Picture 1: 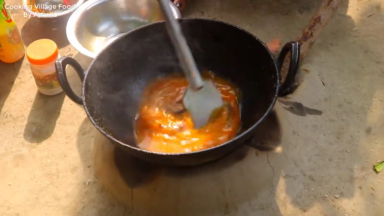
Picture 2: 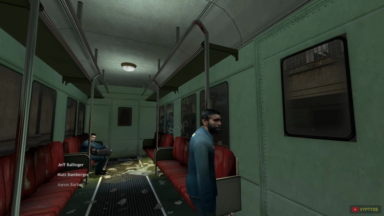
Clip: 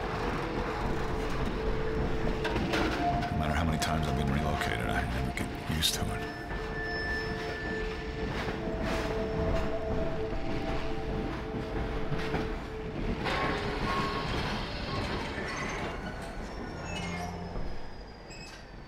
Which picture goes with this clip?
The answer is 2